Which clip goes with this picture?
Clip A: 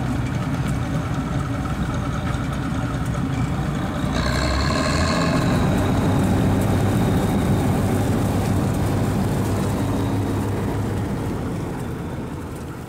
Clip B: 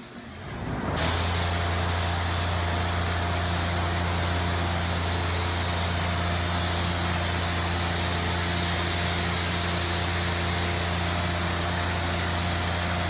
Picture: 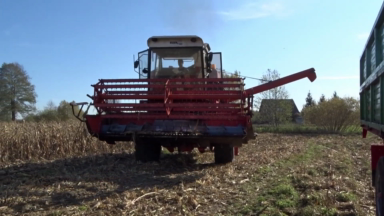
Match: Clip A